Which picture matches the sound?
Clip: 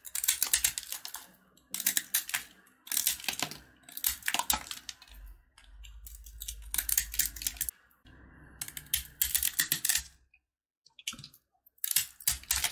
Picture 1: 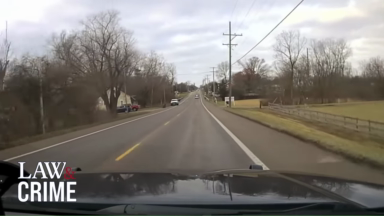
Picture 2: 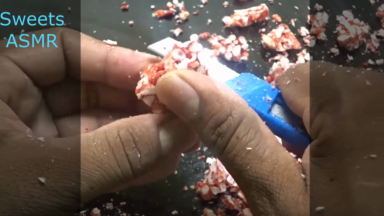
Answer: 2